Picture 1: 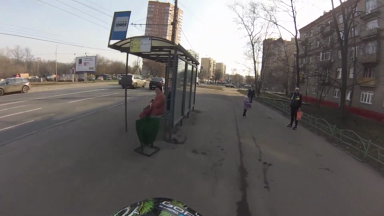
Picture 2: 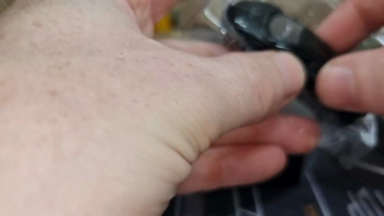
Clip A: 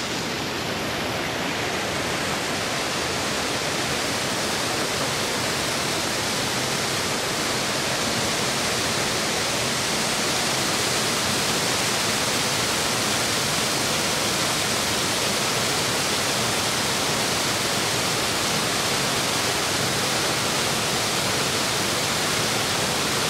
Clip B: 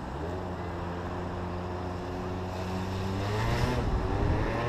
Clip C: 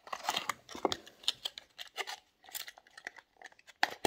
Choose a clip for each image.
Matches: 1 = B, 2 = C